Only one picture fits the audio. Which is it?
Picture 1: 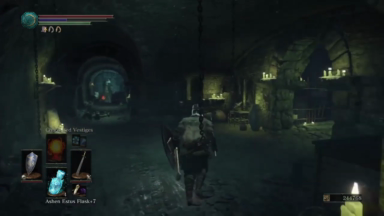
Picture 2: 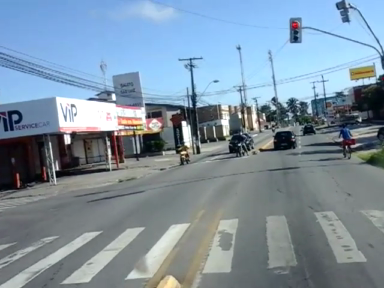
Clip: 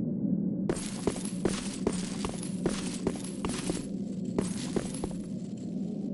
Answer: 1